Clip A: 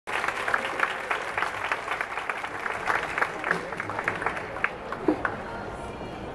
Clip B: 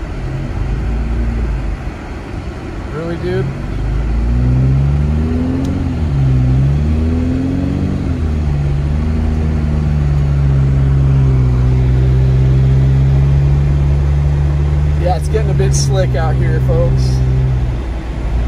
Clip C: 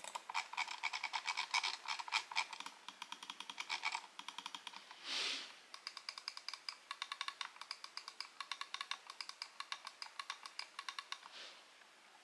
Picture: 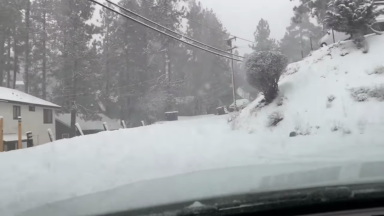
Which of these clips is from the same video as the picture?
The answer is B